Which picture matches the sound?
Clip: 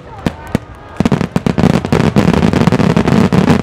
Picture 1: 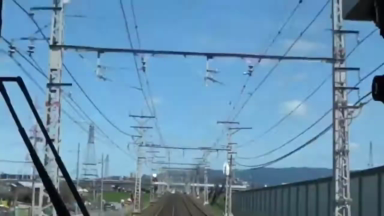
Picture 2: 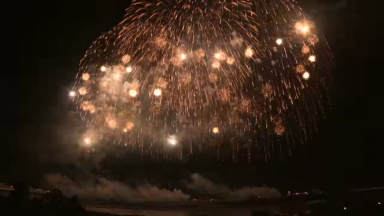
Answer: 2